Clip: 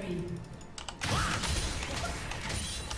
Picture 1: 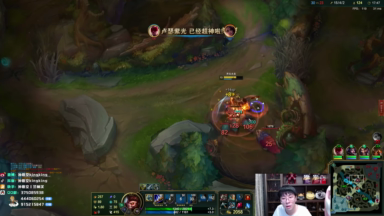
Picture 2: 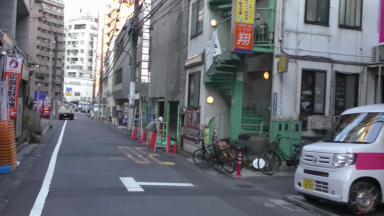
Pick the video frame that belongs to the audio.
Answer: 1